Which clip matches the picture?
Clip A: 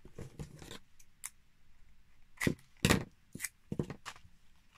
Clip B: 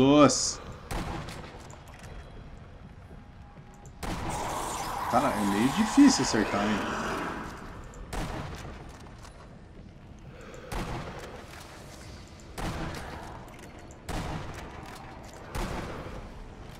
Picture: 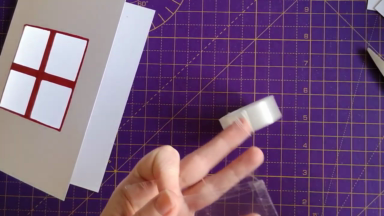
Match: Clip A